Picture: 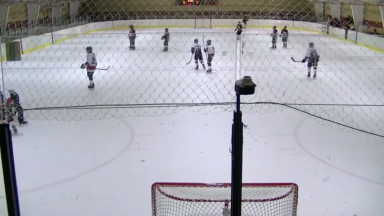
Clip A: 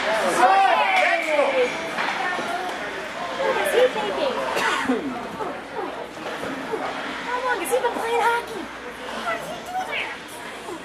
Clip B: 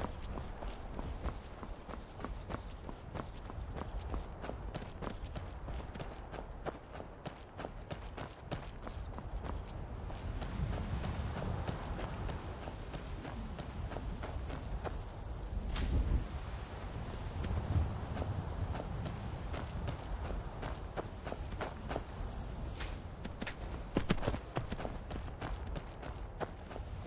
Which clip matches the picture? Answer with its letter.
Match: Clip A